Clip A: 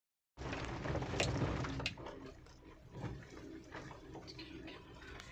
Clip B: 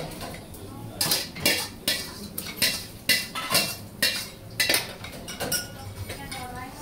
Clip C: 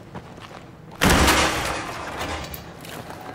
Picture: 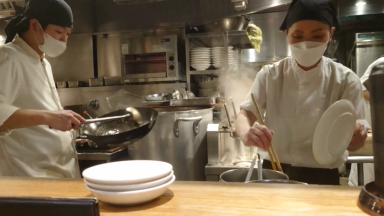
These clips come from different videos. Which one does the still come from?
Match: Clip B